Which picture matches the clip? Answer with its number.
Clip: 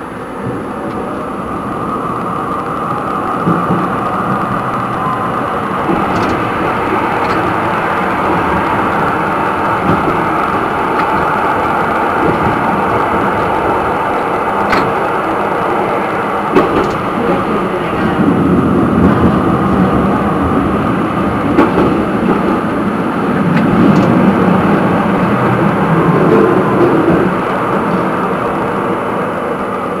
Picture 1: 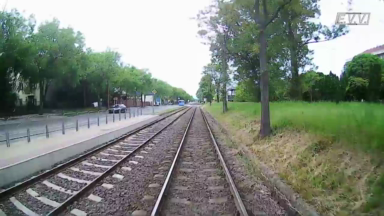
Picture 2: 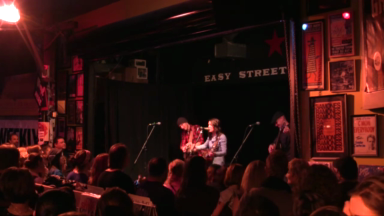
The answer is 1